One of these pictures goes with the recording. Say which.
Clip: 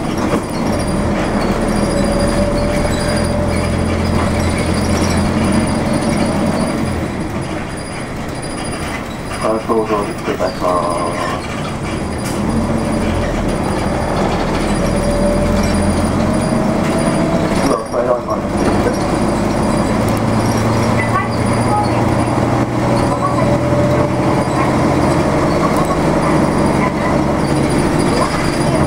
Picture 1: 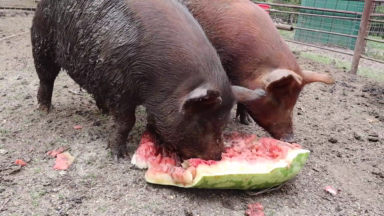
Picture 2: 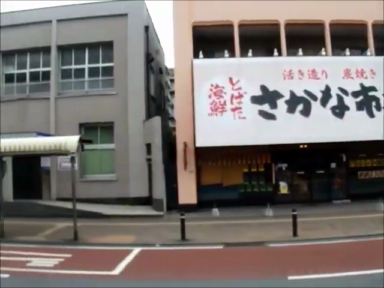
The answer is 2